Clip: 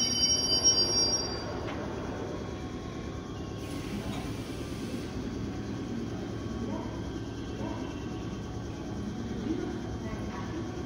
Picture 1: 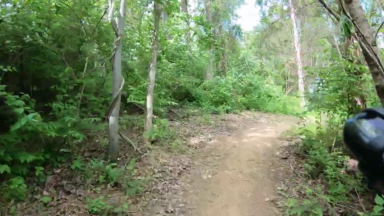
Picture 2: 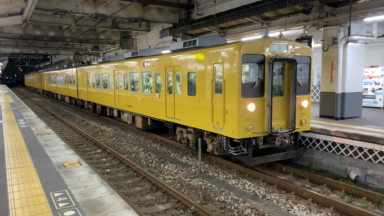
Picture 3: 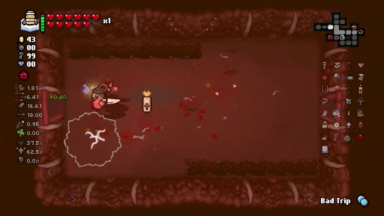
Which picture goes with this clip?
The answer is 2